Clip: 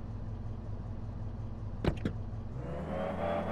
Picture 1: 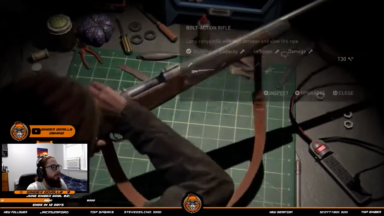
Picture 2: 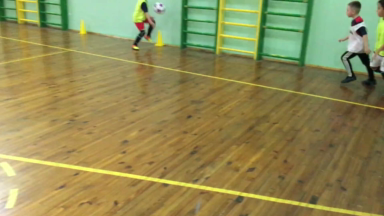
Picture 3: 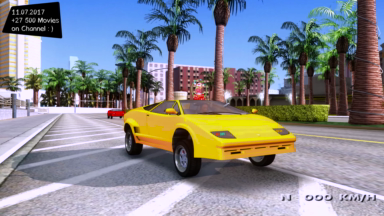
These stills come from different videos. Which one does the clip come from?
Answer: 3